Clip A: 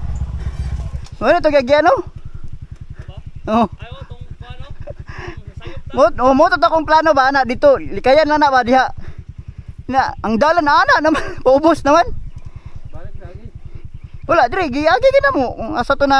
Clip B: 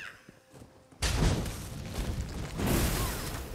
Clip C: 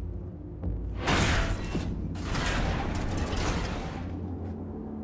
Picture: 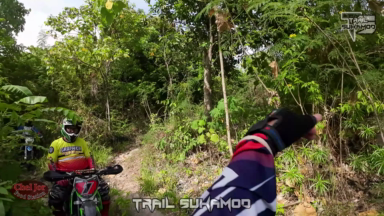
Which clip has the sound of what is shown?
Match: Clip A